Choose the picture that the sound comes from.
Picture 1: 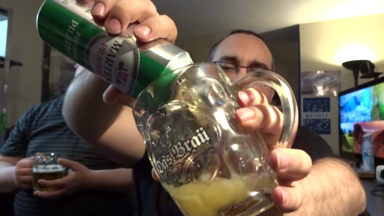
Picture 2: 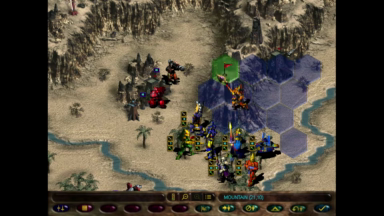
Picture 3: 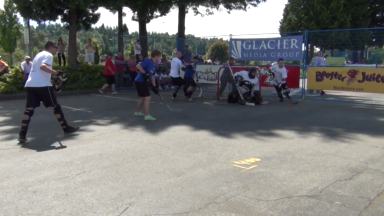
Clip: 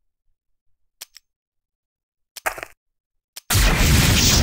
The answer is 2